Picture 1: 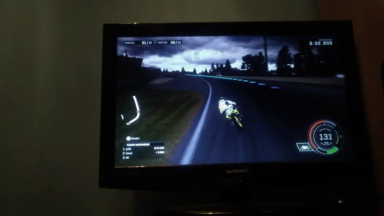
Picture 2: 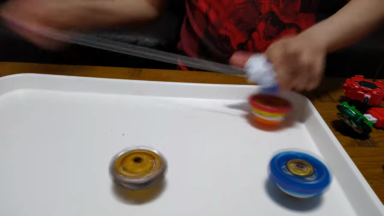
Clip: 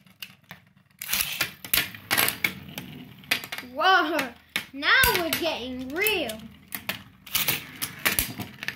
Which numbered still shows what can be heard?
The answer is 2